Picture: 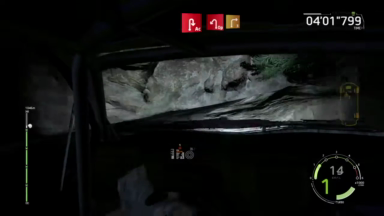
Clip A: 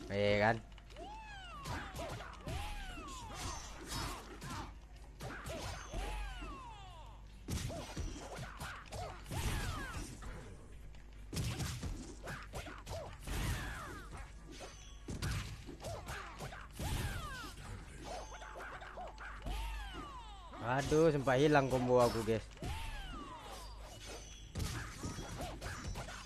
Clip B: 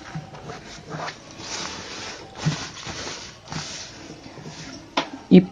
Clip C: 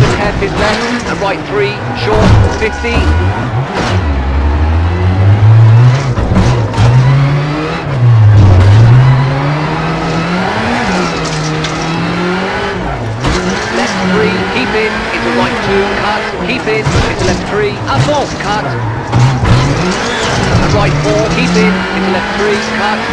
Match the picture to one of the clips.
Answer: C